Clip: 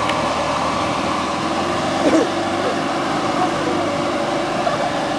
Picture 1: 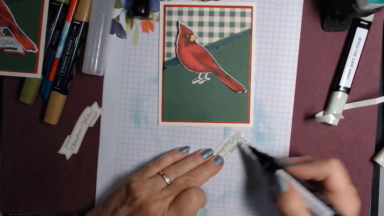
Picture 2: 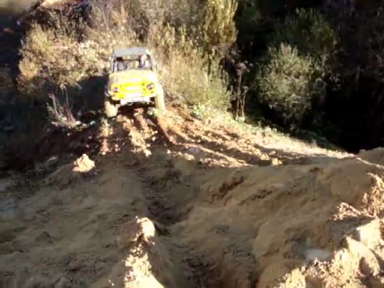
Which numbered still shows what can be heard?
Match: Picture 2